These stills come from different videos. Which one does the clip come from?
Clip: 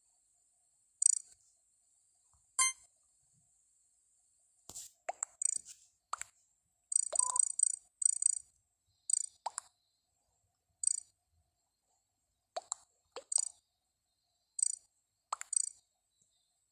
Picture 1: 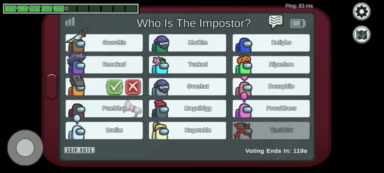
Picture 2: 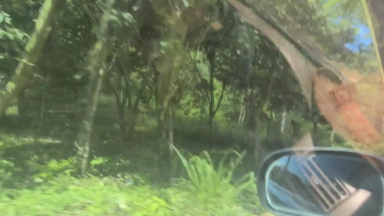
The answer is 1